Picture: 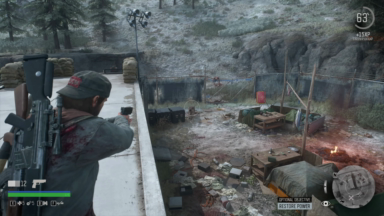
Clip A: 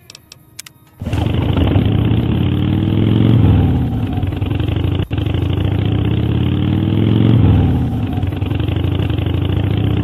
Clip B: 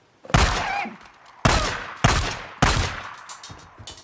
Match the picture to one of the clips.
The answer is B